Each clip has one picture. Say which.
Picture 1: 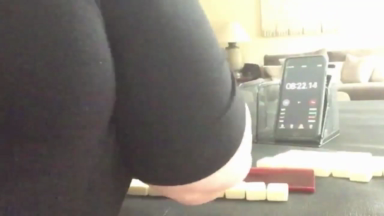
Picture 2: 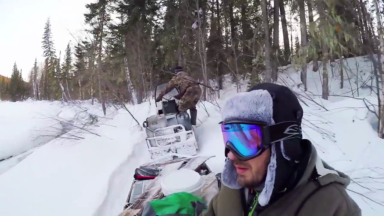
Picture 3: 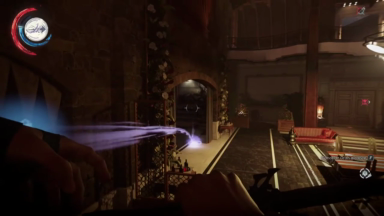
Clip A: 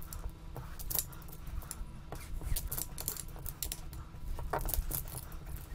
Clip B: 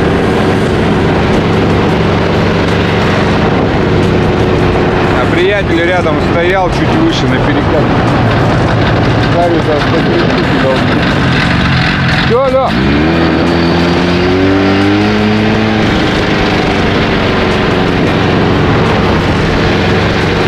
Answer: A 1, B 2